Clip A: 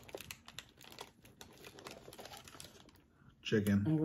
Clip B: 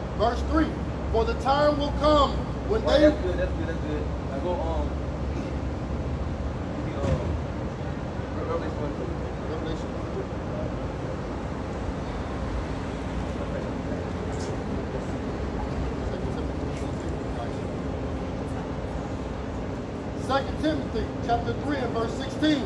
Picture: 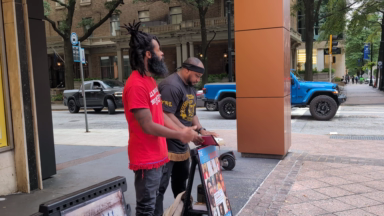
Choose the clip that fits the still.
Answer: B